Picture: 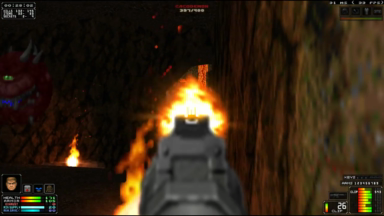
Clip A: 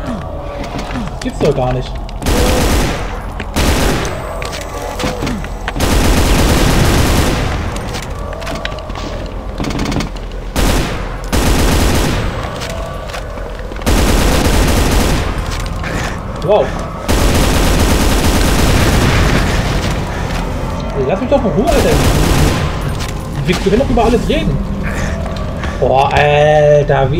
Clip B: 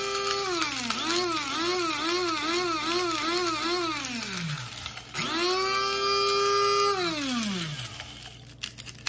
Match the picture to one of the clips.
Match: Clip A